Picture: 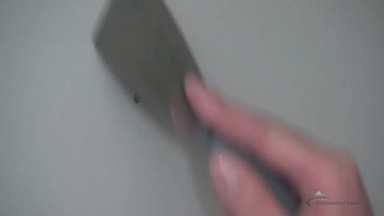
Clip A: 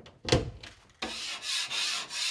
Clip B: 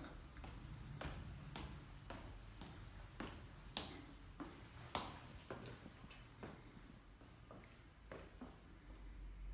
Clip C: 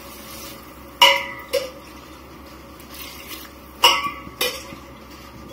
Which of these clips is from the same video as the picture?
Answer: A